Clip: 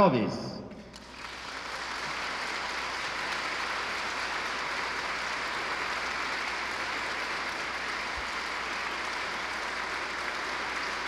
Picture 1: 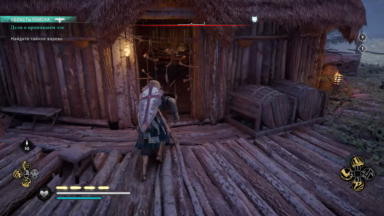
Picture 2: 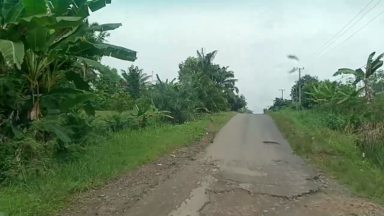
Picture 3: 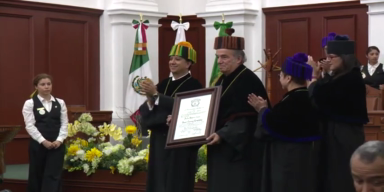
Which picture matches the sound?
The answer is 3